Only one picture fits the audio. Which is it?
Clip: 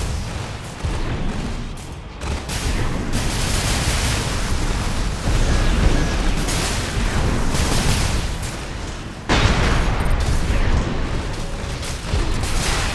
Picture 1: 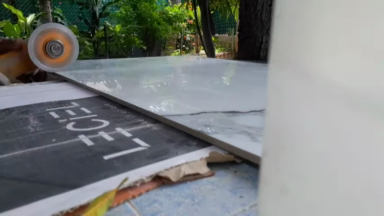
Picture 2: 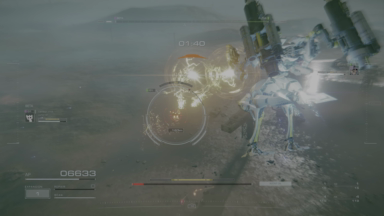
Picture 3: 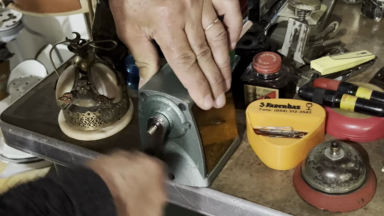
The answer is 2